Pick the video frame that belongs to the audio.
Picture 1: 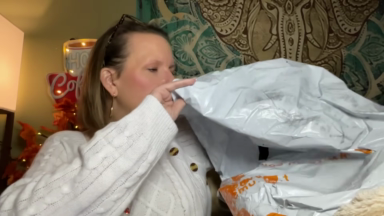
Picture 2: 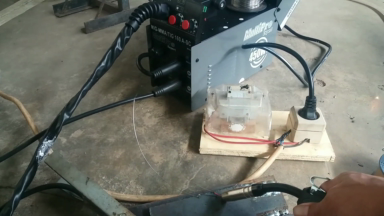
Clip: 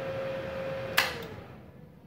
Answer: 2